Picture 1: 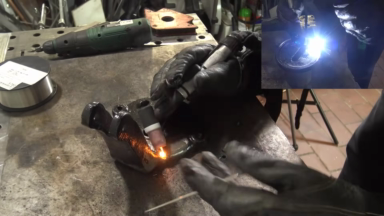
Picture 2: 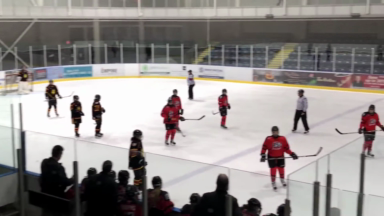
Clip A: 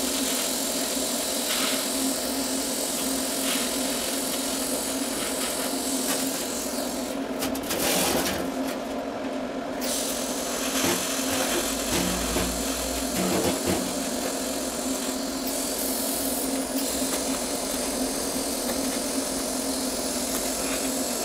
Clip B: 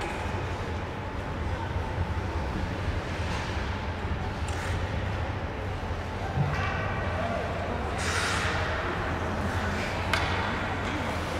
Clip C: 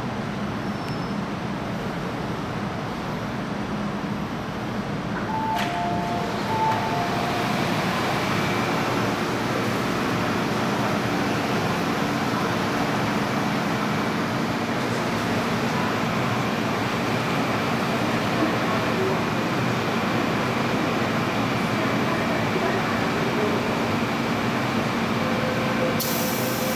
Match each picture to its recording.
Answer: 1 A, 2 B